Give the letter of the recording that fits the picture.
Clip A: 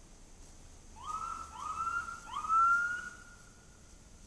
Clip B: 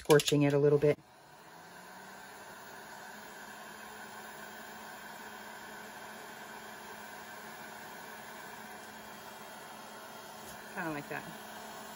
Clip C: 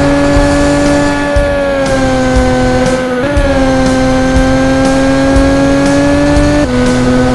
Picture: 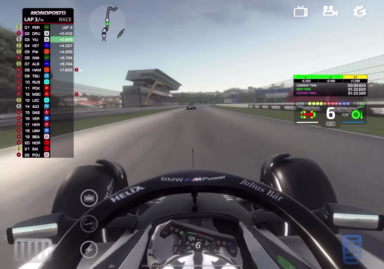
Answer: C